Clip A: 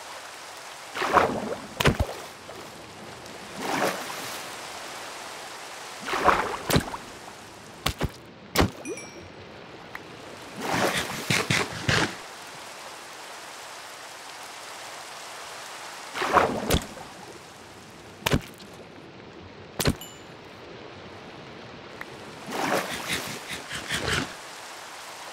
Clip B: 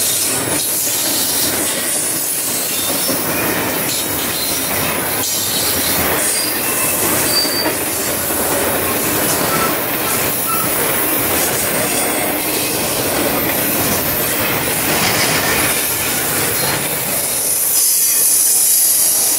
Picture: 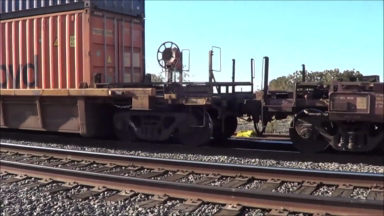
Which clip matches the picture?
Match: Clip B